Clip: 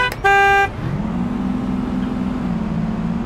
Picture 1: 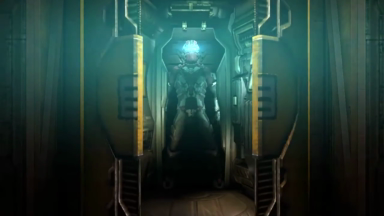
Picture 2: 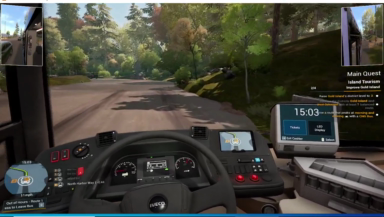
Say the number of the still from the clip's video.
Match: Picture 2